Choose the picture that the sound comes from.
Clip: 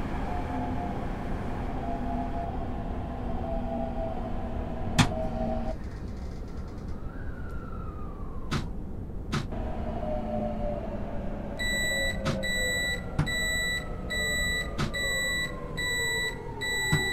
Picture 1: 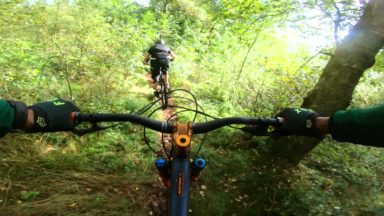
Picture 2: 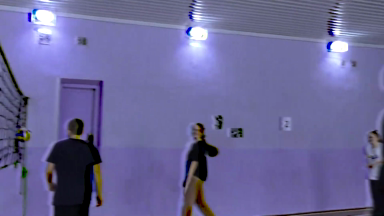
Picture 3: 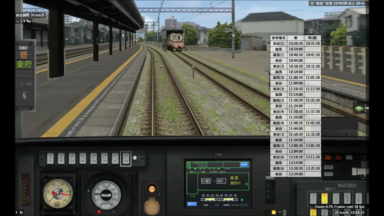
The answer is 3